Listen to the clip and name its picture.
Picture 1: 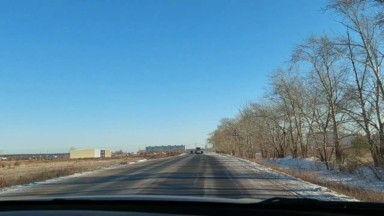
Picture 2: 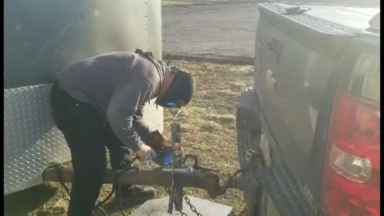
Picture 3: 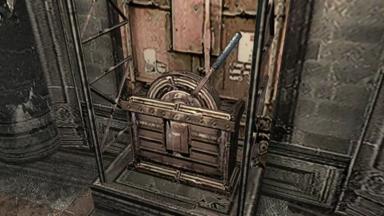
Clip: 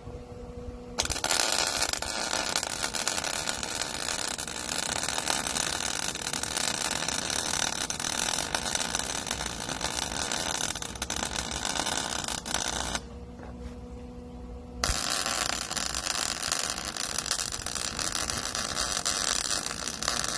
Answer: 2